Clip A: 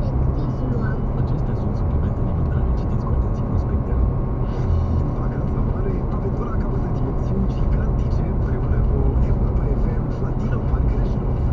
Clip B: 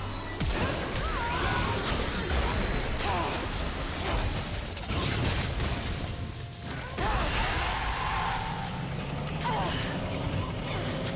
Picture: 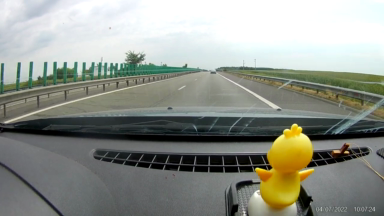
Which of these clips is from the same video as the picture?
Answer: A